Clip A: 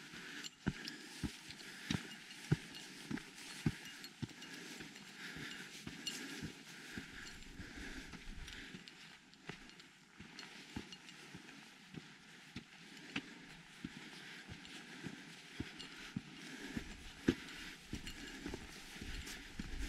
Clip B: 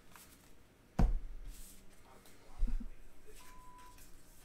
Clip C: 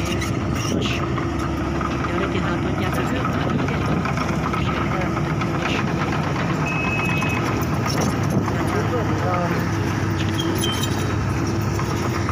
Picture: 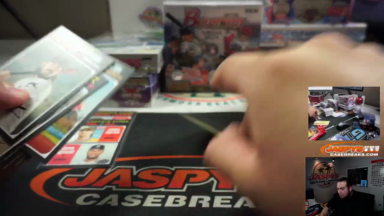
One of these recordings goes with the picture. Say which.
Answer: B